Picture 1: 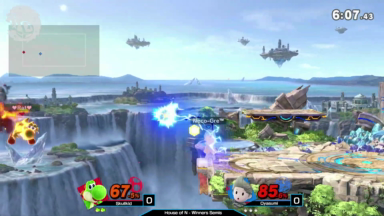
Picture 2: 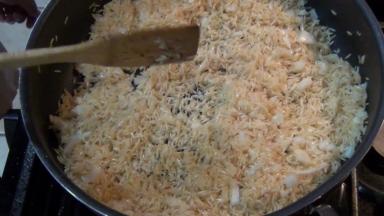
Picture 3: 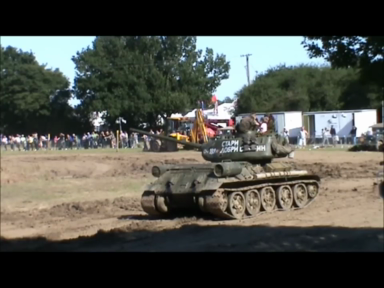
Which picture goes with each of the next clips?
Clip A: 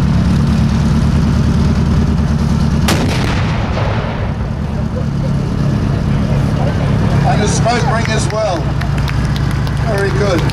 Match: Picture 3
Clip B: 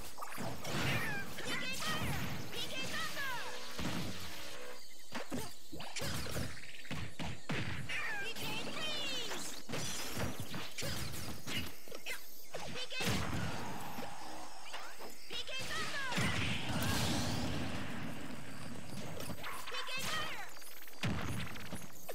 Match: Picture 1